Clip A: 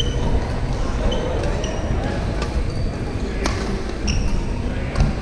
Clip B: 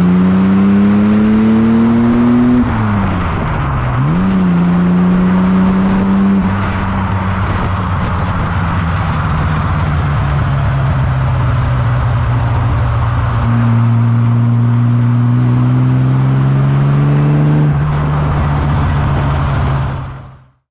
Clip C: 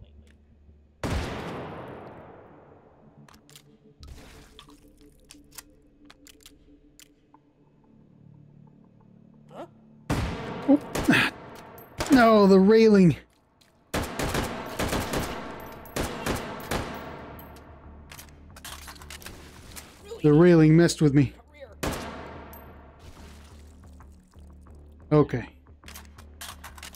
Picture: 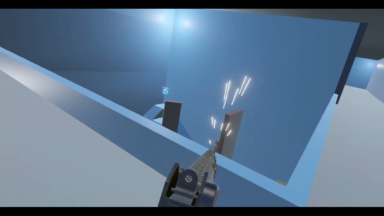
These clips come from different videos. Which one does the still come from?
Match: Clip C